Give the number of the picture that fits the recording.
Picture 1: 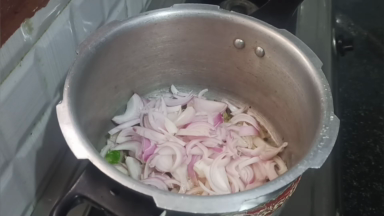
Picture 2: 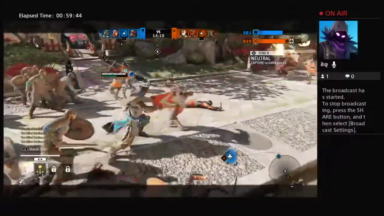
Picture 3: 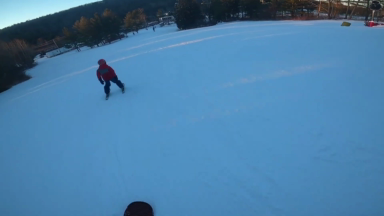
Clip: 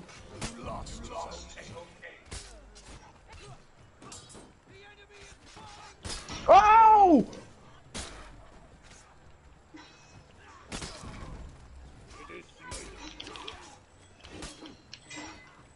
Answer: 2